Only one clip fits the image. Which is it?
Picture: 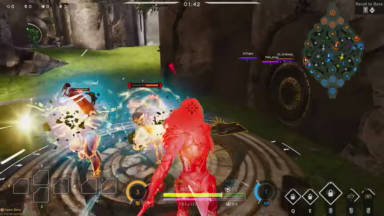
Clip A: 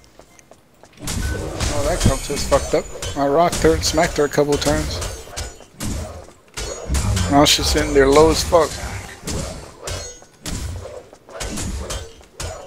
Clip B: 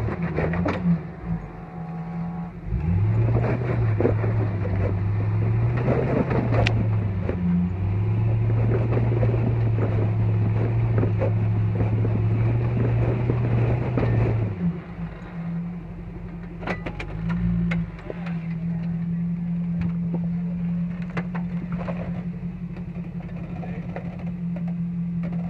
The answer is A